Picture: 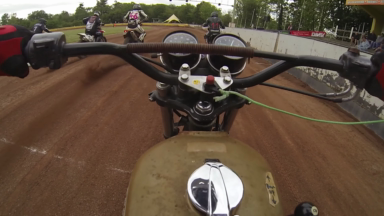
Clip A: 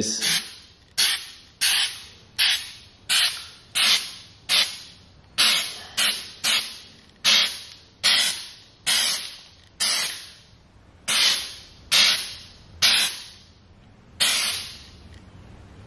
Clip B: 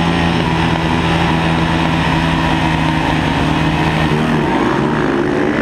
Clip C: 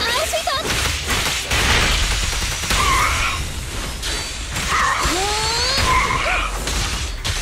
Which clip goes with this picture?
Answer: B